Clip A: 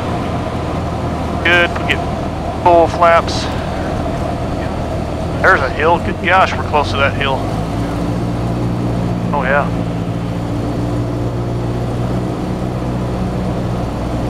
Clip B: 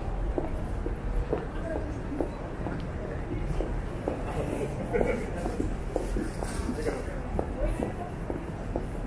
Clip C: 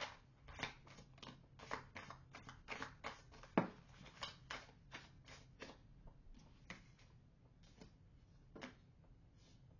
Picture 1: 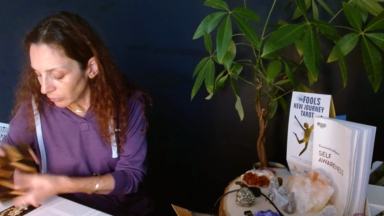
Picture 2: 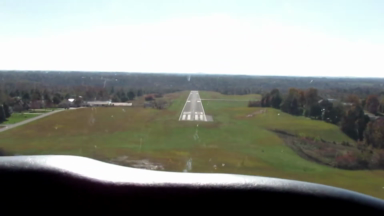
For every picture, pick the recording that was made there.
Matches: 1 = C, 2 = A